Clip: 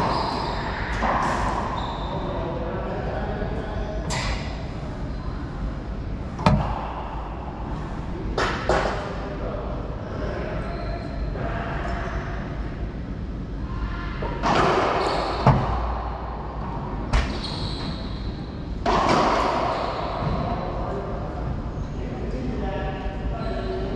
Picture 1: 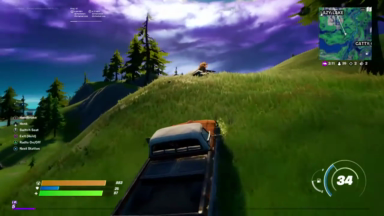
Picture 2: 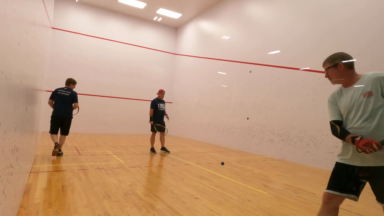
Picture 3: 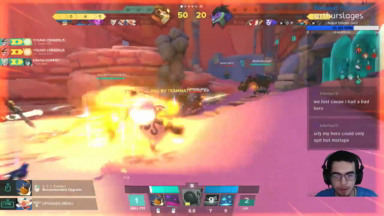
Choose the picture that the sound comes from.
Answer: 2